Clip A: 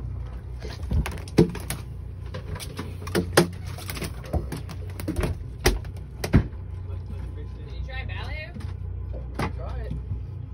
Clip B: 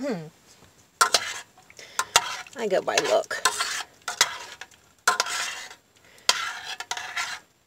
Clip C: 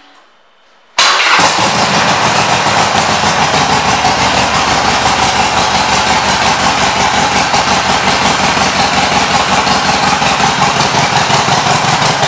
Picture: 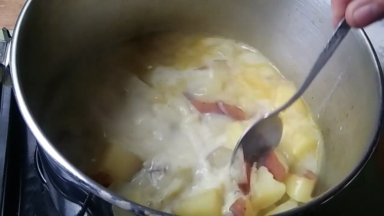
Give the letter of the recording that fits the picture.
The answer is B